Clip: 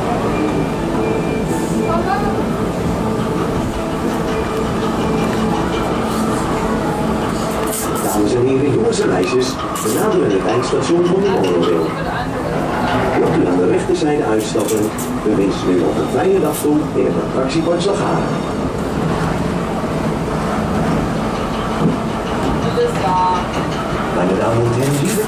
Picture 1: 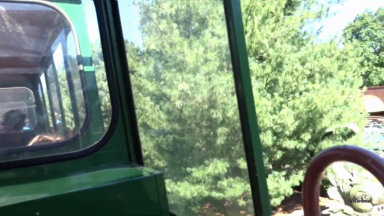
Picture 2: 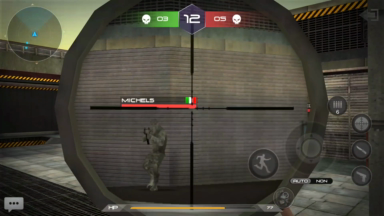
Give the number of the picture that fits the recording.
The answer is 1